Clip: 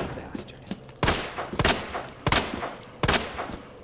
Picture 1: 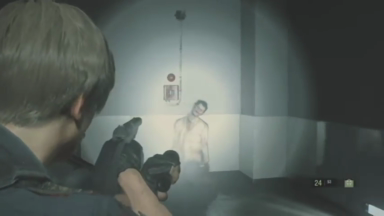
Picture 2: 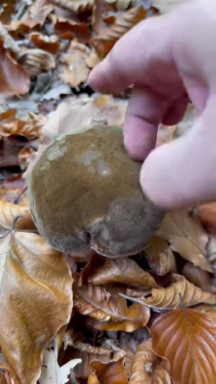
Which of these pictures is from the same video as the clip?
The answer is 1